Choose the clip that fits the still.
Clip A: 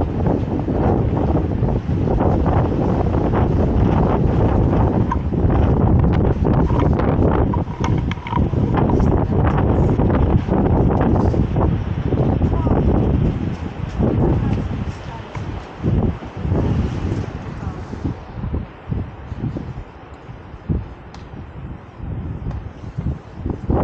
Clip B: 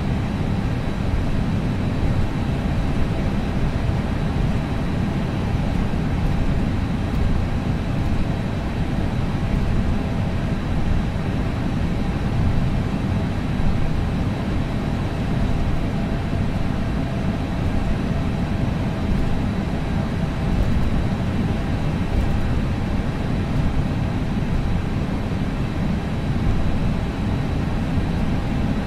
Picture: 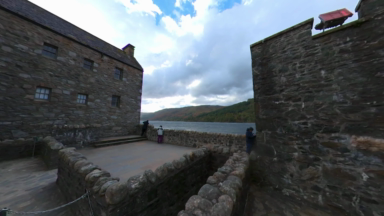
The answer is A